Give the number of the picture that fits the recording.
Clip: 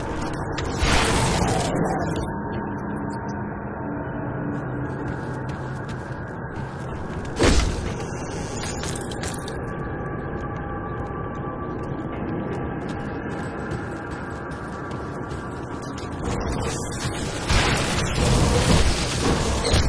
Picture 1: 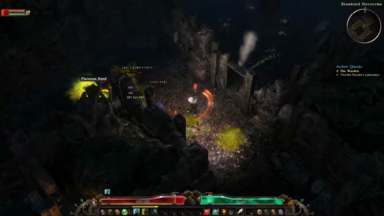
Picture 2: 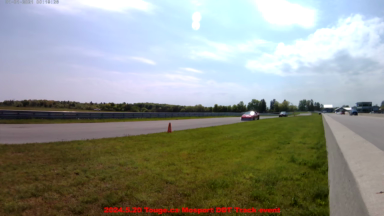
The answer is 1